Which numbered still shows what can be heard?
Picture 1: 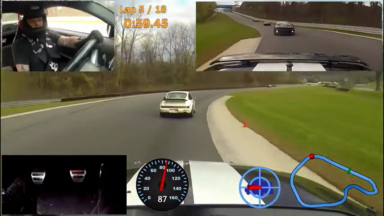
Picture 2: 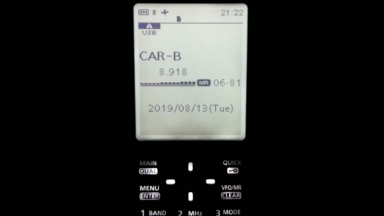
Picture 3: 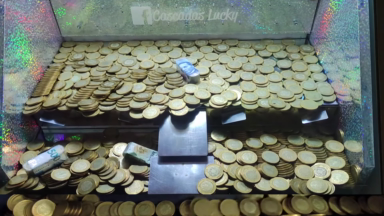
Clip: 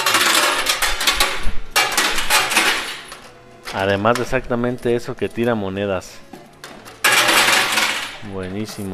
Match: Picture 3